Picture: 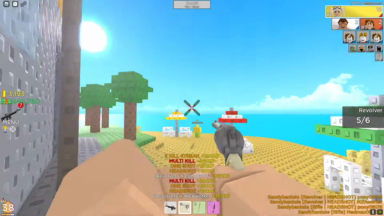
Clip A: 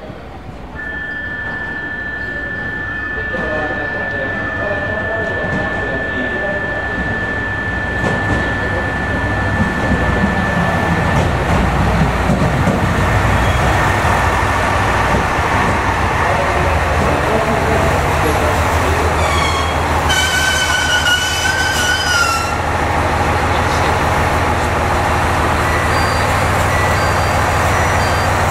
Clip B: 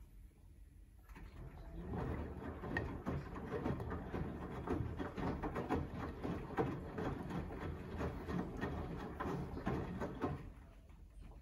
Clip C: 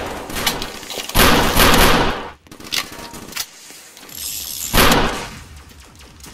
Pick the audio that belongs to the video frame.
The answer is C